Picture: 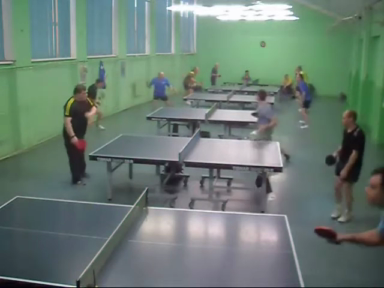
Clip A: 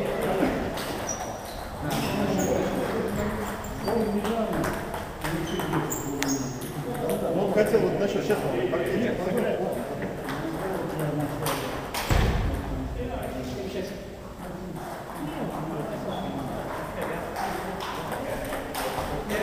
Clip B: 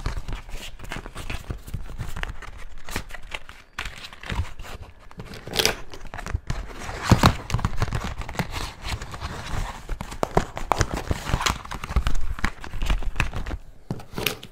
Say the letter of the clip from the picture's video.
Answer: A